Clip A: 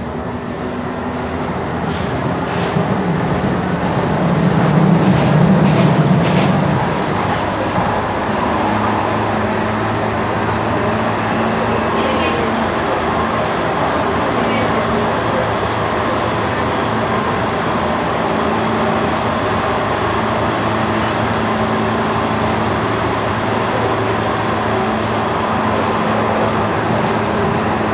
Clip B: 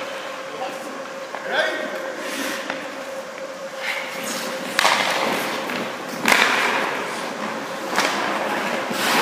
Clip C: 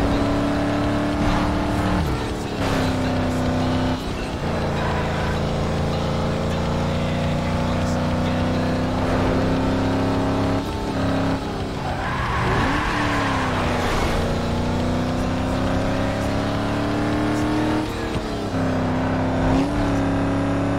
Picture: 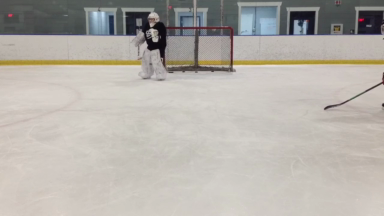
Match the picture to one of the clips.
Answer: B